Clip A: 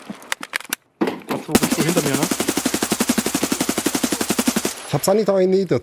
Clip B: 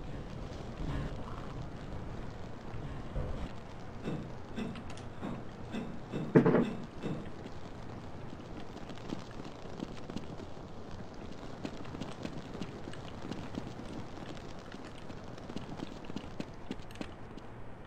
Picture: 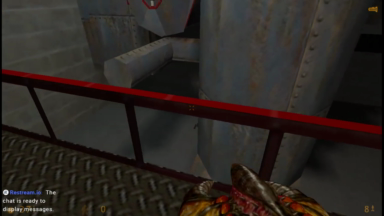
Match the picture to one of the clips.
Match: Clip B